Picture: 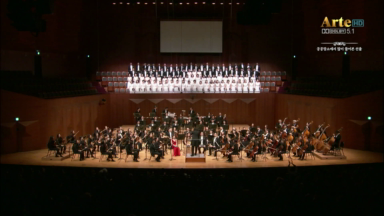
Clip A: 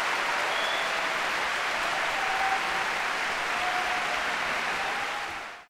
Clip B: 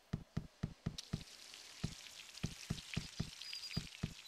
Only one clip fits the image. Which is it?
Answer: A